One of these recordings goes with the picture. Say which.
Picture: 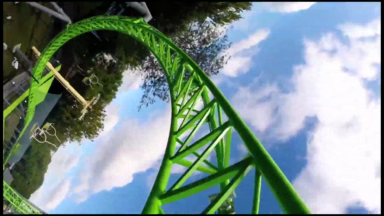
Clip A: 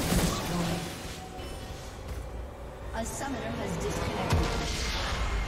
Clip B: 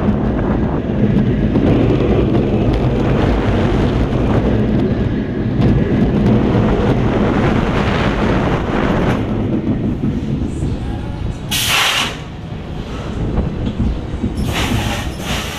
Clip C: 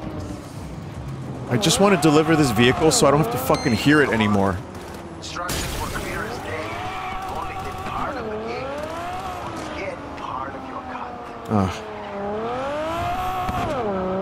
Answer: B